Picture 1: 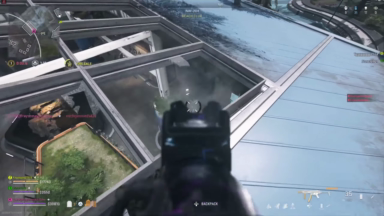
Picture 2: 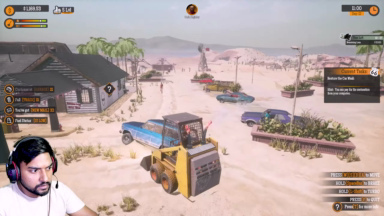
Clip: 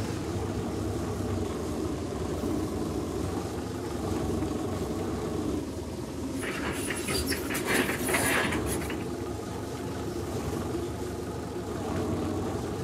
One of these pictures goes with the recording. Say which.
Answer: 2